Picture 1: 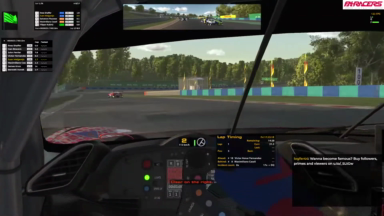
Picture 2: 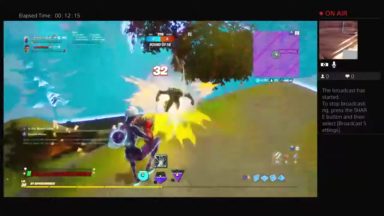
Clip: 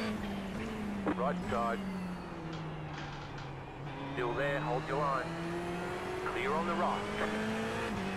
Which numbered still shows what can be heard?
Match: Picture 1